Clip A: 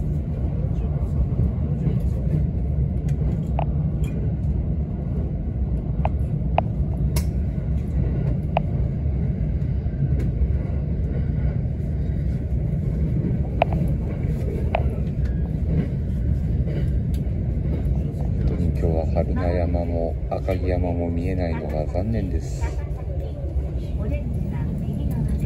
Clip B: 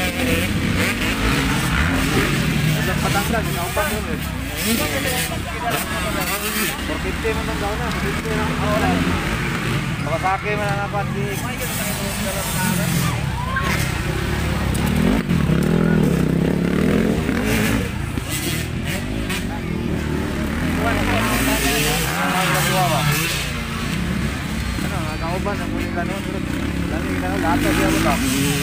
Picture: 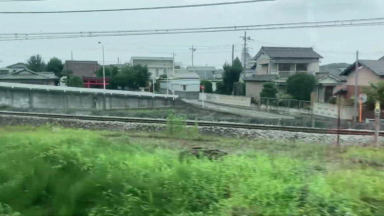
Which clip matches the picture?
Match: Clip A